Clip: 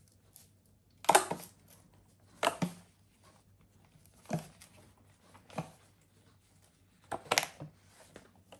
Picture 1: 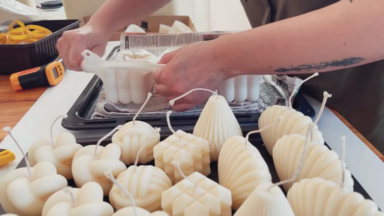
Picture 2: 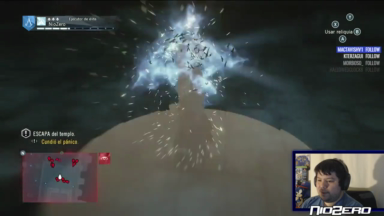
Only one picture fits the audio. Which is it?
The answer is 1